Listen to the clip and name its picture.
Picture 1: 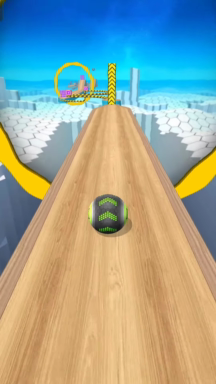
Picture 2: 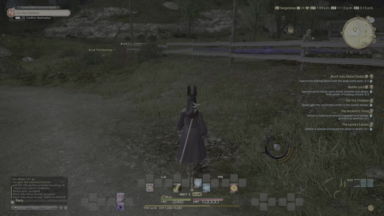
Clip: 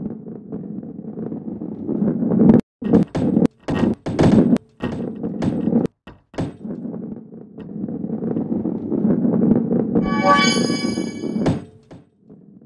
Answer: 1